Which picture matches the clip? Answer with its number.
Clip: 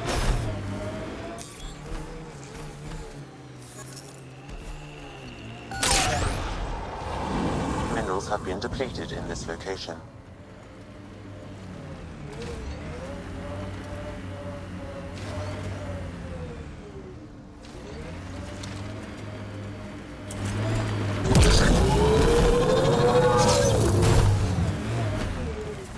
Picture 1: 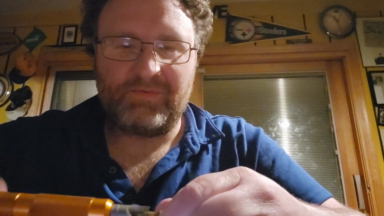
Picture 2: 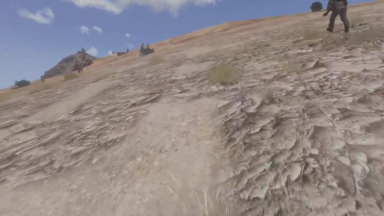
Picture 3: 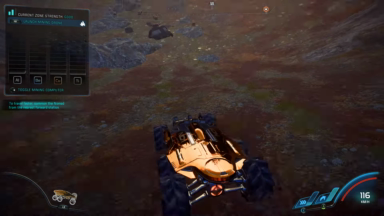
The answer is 3